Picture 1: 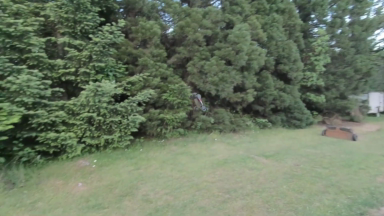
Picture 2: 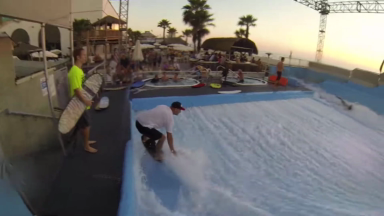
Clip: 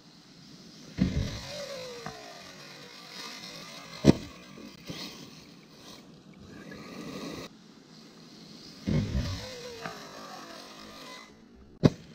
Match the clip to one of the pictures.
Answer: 1